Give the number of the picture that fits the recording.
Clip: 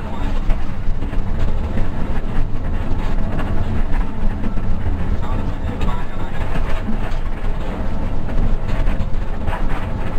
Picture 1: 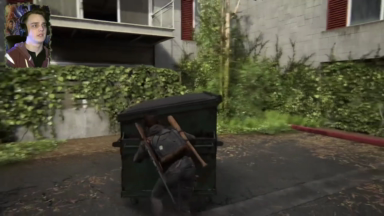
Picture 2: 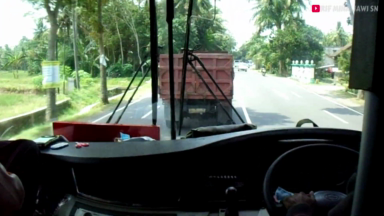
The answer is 2